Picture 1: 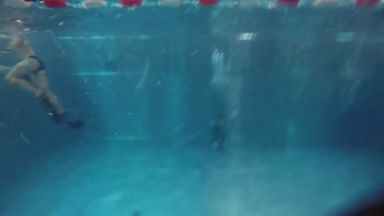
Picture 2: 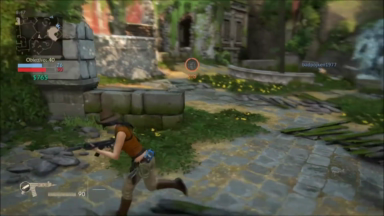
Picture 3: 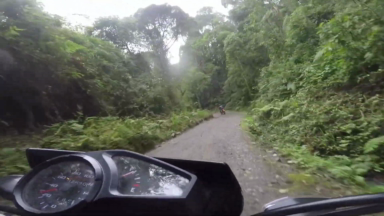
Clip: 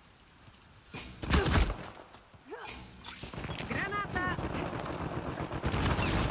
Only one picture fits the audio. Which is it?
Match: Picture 2